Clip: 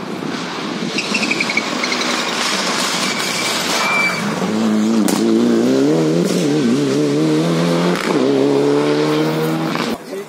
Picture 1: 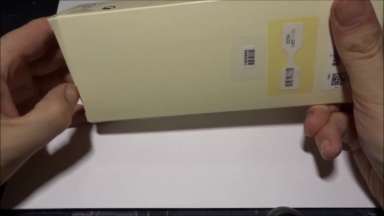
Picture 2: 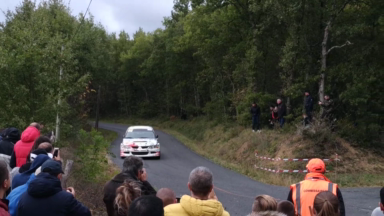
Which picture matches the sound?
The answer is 2